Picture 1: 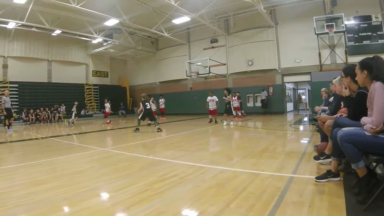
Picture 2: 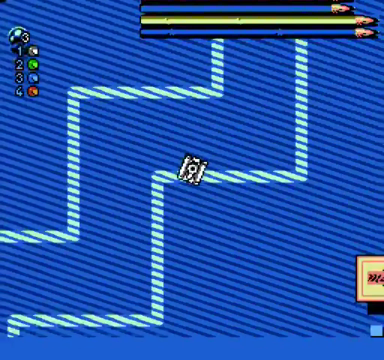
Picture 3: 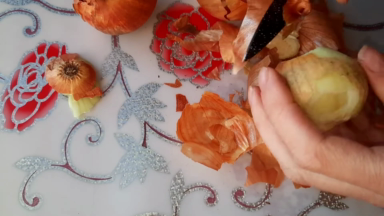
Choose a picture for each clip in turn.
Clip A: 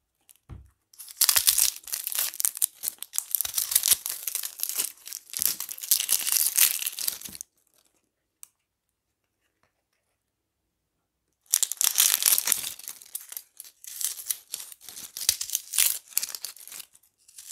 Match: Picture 3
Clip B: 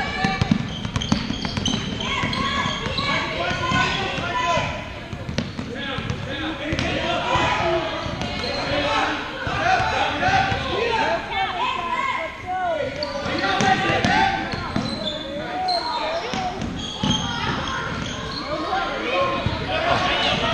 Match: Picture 1